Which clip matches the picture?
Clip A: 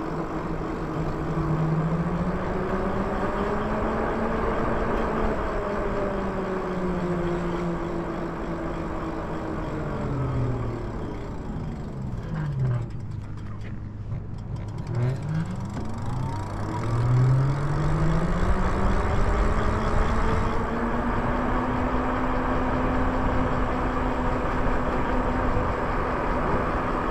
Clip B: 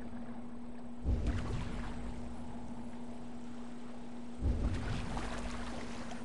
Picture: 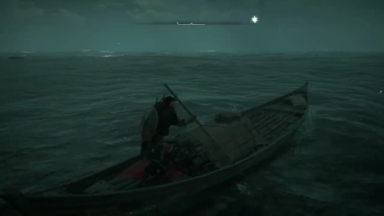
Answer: B